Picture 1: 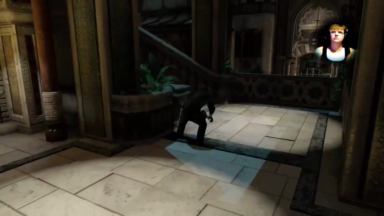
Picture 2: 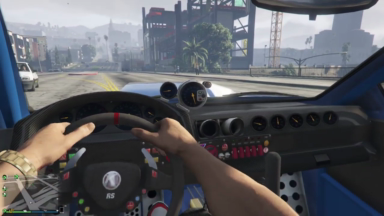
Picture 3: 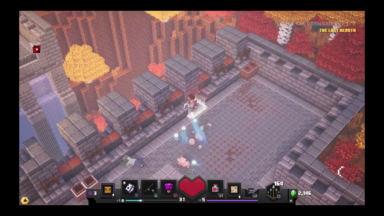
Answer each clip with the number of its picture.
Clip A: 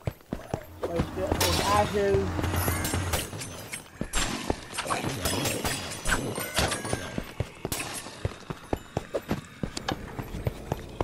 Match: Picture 3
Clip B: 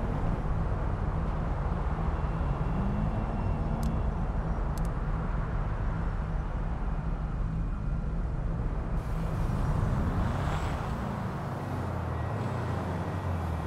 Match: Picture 2